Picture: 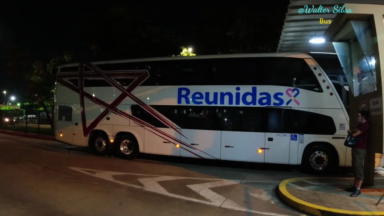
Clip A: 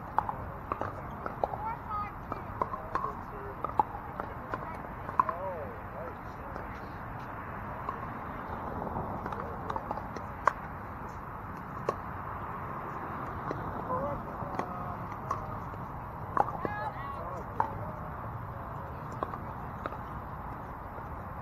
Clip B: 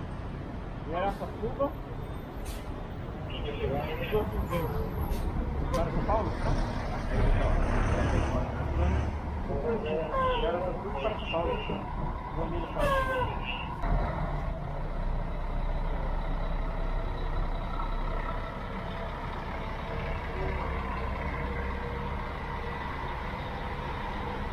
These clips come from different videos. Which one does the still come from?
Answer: B